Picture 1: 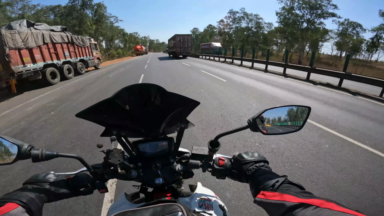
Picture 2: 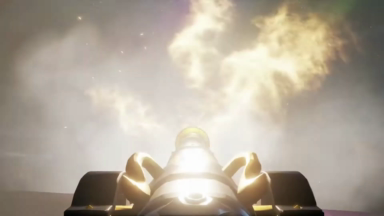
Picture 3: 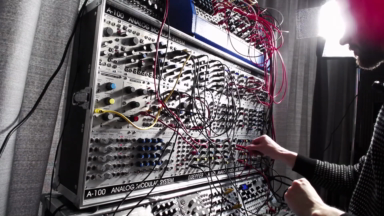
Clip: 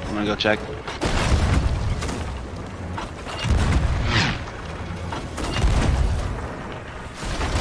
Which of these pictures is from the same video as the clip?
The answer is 2